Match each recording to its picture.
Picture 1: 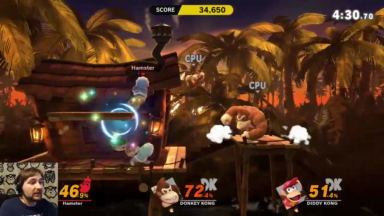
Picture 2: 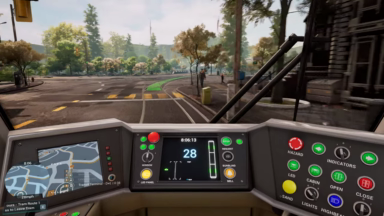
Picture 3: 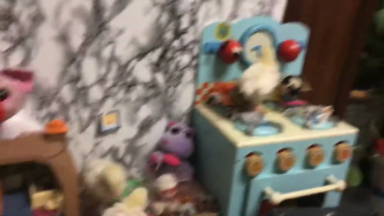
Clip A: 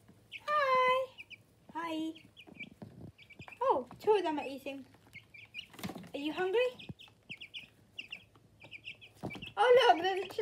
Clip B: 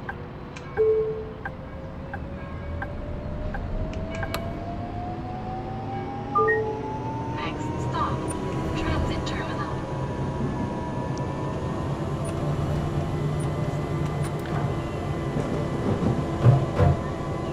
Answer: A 3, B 2